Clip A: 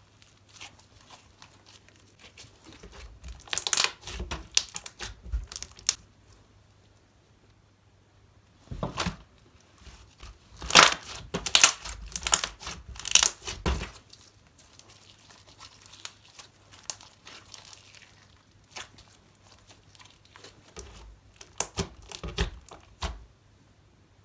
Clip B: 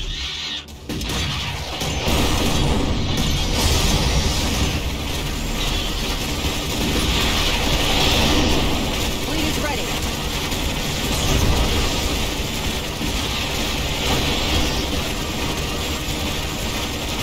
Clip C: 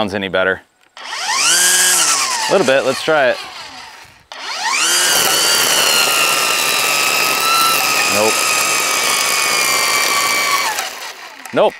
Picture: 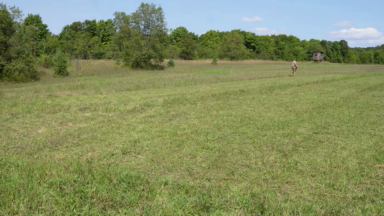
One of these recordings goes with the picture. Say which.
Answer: C